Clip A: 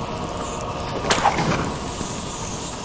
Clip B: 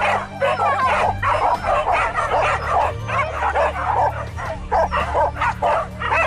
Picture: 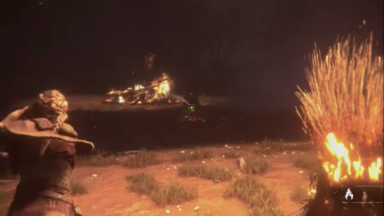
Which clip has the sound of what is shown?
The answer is A